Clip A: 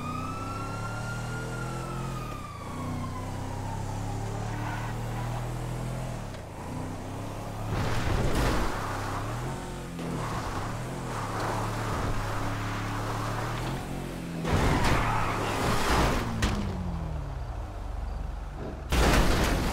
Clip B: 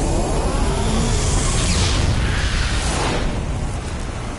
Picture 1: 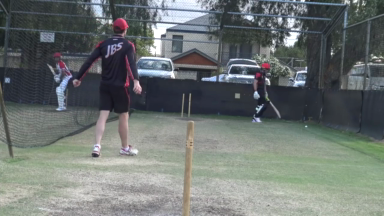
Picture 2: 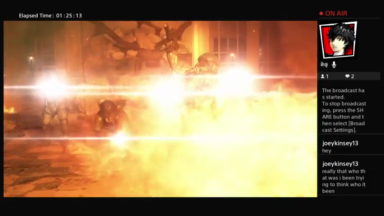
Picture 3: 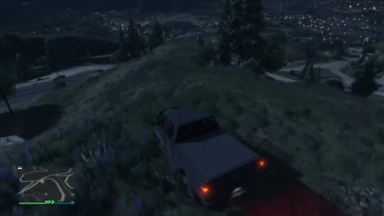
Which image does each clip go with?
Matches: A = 3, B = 2